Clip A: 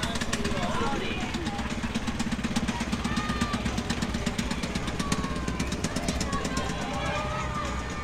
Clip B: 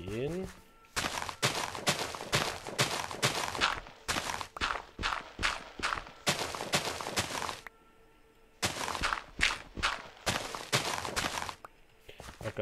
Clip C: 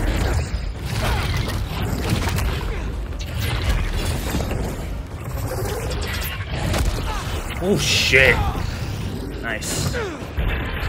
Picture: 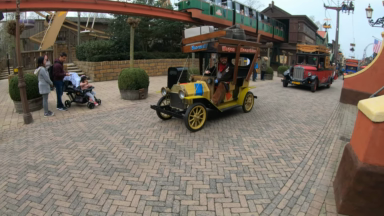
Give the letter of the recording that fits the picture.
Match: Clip A